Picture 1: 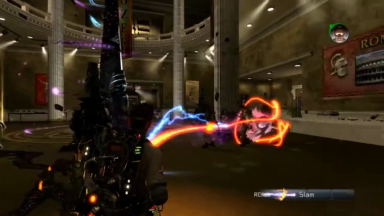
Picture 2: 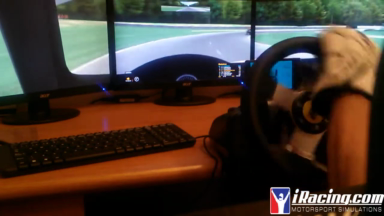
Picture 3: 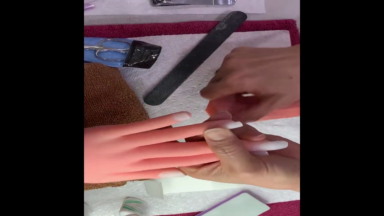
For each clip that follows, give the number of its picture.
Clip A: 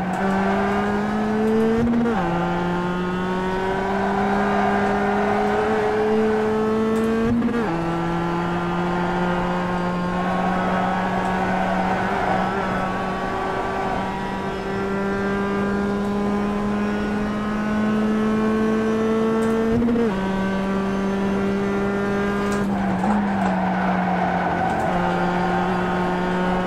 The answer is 2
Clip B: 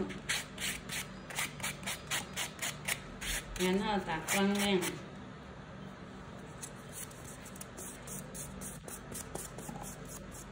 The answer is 3